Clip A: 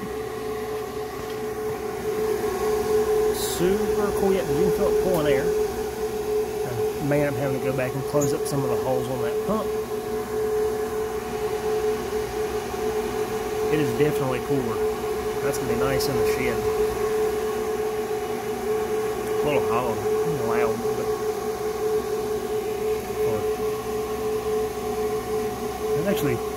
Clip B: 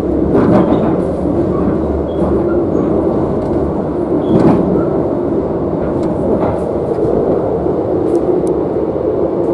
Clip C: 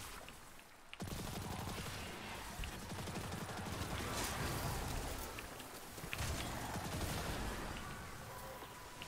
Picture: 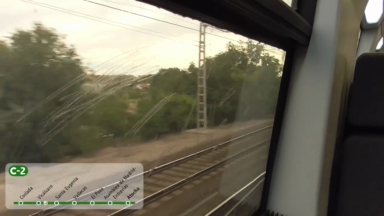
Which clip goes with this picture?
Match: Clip B